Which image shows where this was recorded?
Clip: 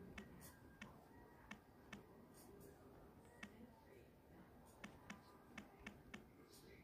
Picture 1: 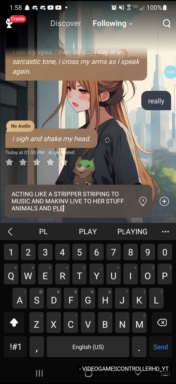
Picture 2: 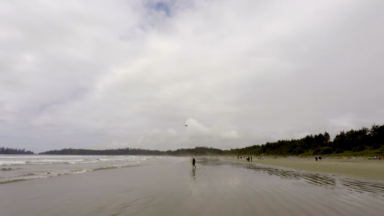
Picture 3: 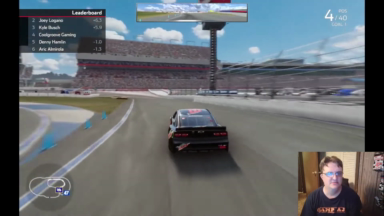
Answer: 1